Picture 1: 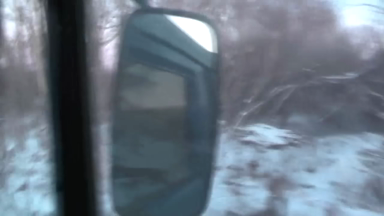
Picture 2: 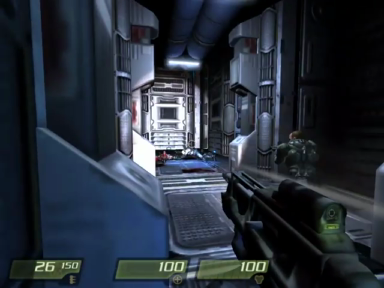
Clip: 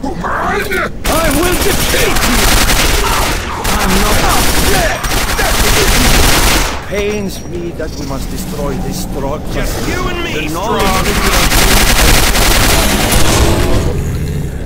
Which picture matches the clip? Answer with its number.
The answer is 2